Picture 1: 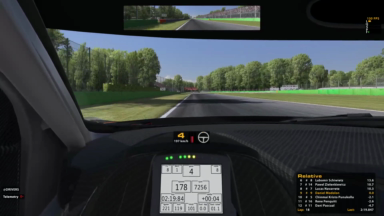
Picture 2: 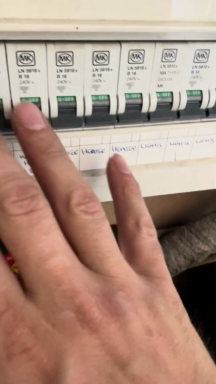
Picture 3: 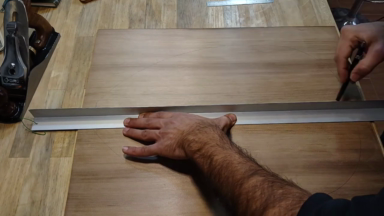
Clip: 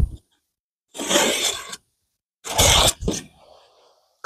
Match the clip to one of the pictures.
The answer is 3